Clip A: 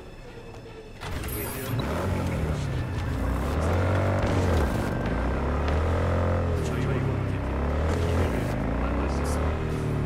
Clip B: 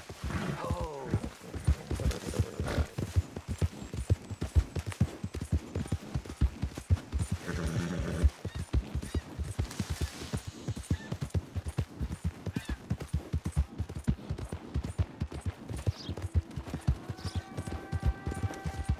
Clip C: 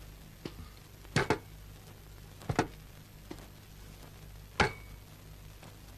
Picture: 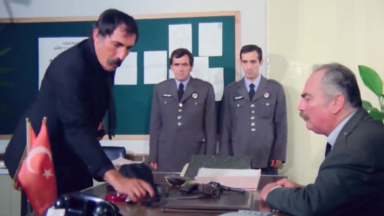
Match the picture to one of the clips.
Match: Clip C